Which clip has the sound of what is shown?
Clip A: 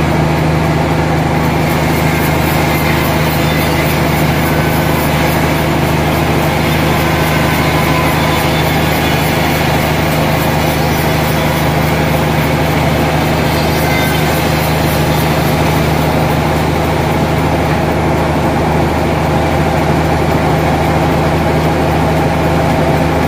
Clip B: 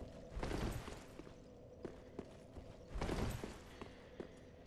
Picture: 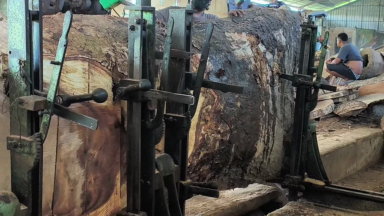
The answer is A